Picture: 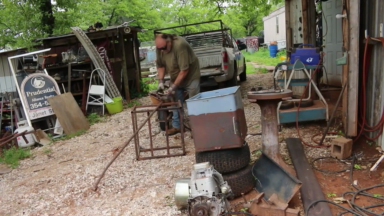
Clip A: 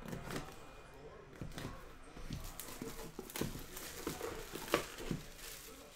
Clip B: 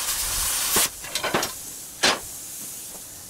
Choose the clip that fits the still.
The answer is B